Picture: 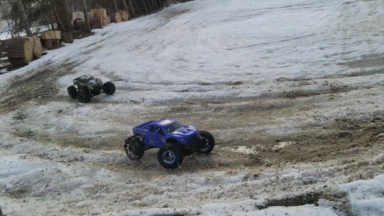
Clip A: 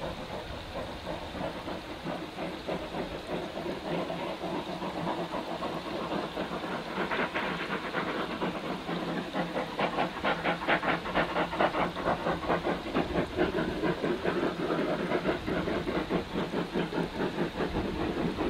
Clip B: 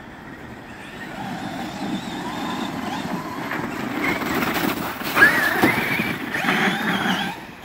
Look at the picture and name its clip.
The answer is B